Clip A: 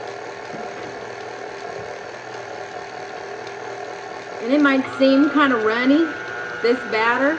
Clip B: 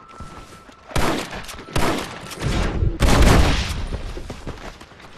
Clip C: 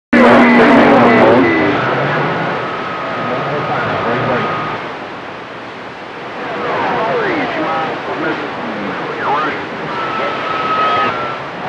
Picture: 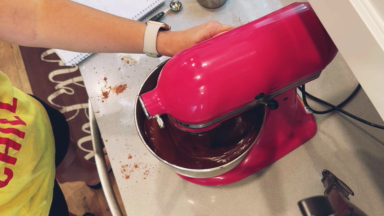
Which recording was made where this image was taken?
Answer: A